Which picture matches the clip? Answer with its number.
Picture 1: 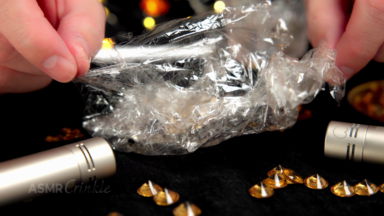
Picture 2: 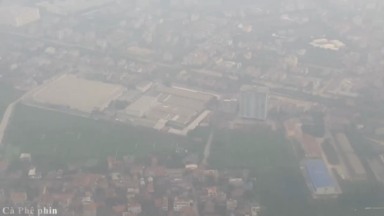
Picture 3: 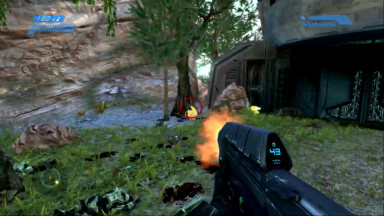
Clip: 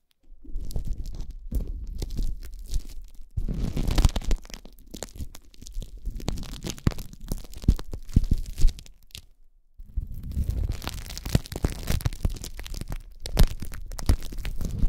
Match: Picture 1